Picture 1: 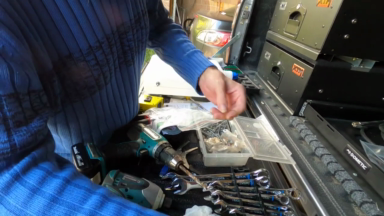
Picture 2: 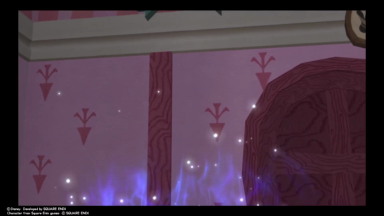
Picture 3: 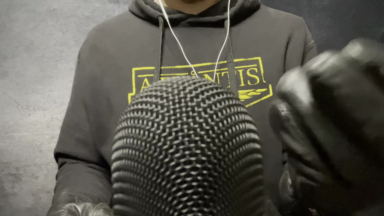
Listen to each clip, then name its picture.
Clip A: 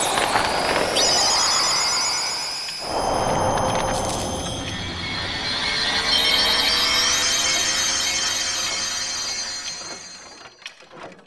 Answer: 2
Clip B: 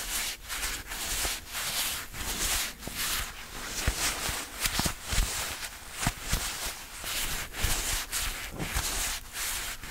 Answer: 3